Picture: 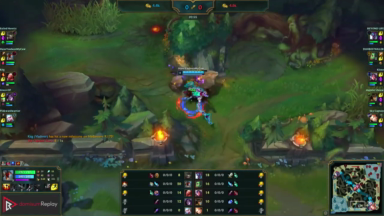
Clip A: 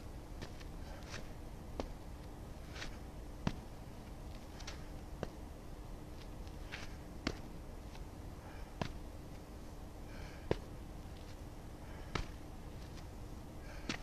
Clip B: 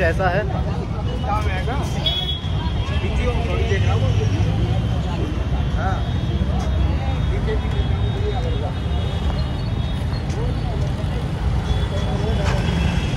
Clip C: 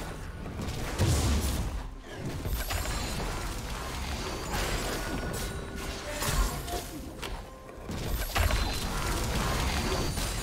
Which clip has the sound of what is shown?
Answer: C